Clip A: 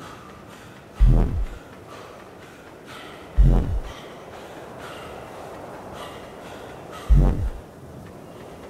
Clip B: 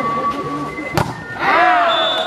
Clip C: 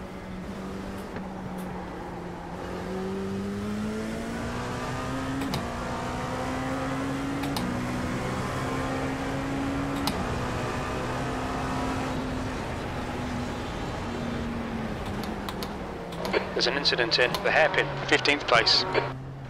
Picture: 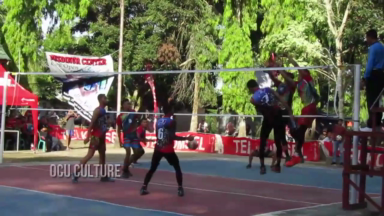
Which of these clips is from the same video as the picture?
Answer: B